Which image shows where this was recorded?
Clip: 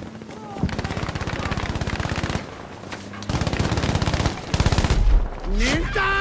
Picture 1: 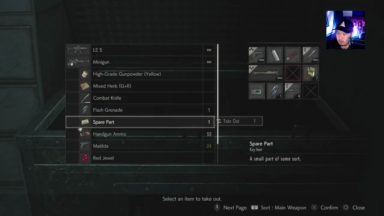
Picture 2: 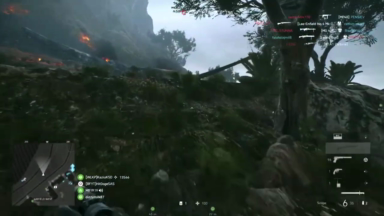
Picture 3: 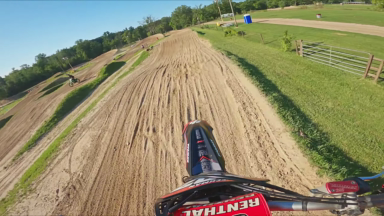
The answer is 2